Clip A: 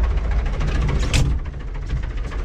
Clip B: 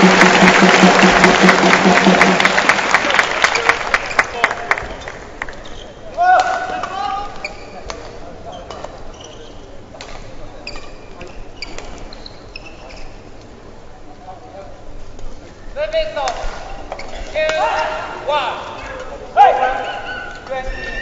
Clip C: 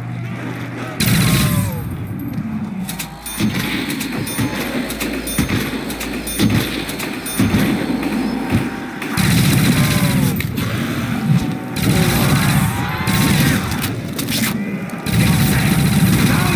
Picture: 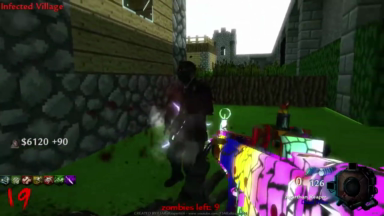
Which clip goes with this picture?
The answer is C